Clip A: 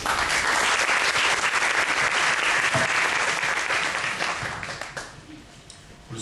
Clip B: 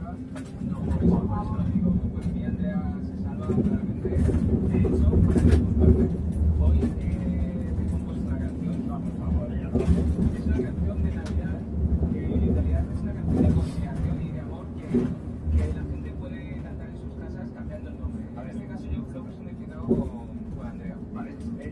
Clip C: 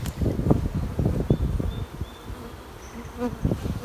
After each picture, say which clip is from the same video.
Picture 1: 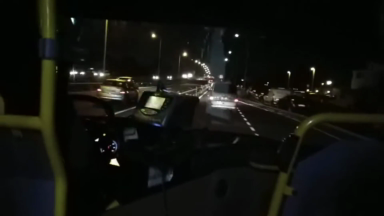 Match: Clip B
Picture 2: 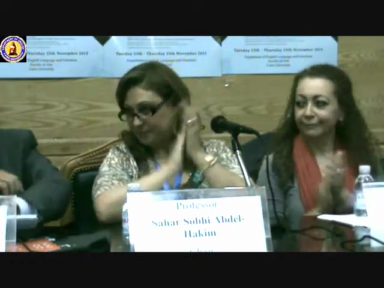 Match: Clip A